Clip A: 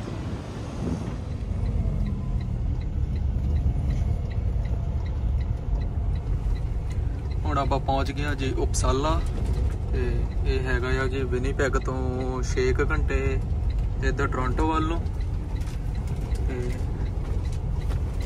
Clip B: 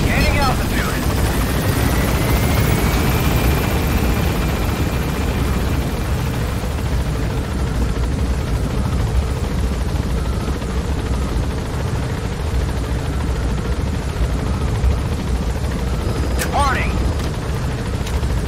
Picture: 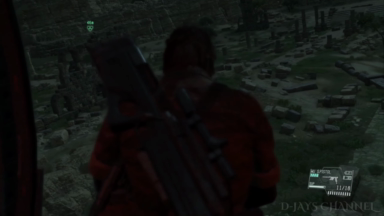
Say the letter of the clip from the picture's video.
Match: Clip B